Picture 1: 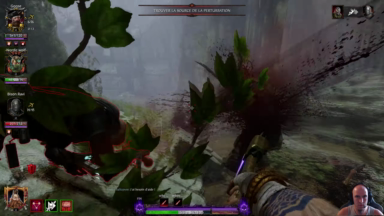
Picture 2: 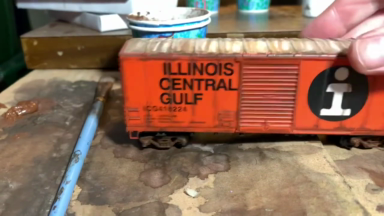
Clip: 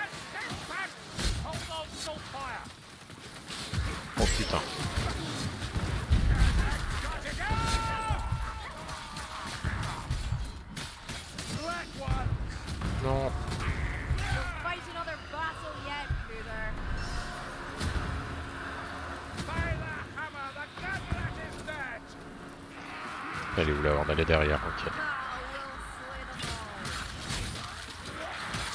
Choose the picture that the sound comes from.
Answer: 1